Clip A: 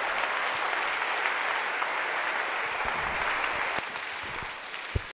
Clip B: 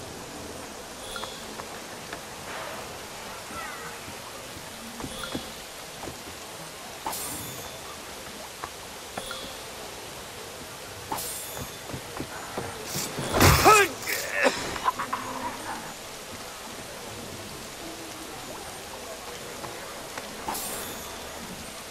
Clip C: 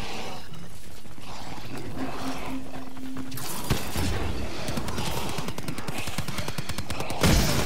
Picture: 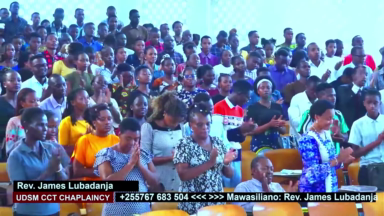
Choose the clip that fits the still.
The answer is A